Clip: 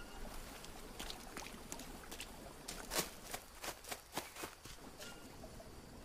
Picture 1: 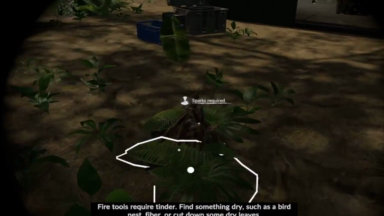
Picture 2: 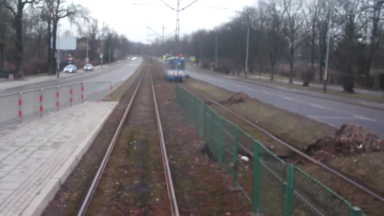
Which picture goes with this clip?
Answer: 1